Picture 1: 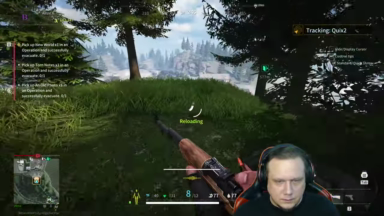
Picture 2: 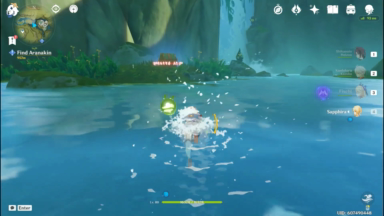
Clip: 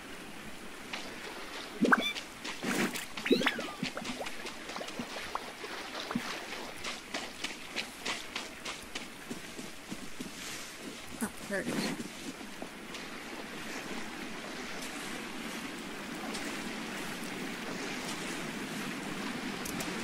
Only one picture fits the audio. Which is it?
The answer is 2